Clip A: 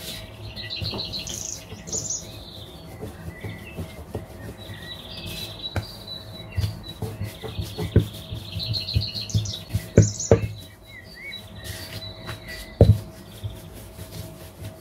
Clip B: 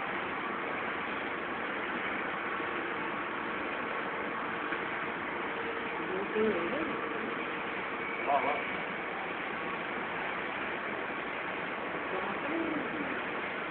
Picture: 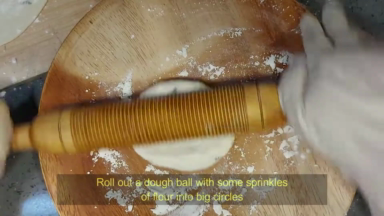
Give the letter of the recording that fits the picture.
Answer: A